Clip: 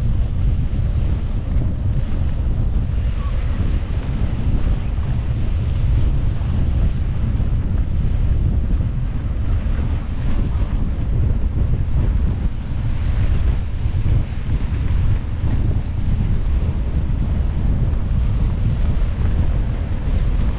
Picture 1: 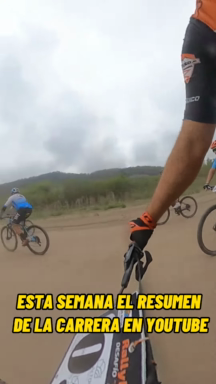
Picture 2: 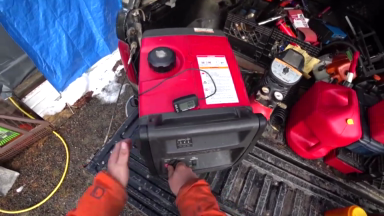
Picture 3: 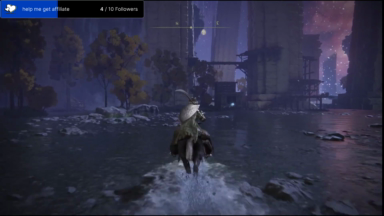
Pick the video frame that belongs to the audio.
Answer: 1